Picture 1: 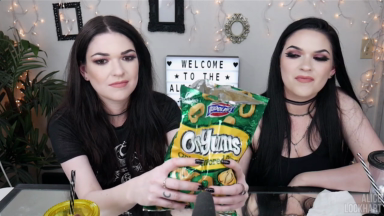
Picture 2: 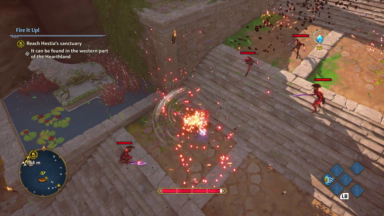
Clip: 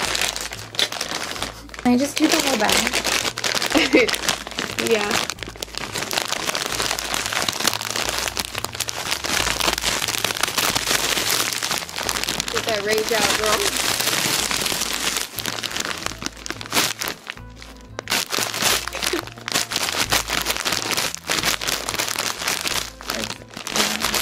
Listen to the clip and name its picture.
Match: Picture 1